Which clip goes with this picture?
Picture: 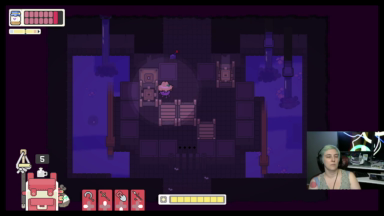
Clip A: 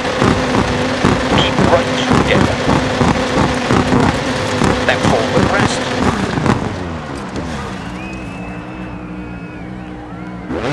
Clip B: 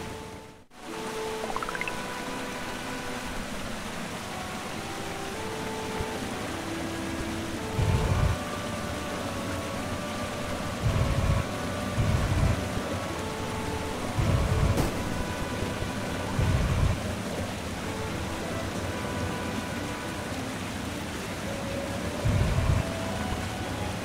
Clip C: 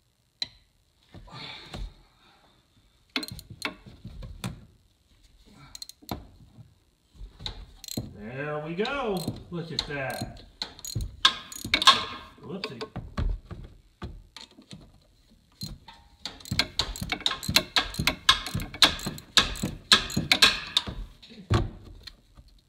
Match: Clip B